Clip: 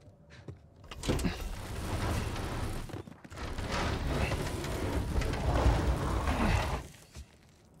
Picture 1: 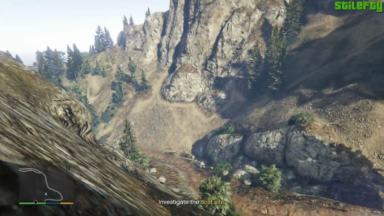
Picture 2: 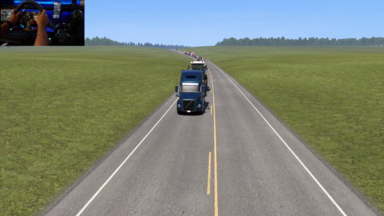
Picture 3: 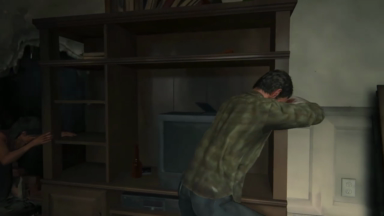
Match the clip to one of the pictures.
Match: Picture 3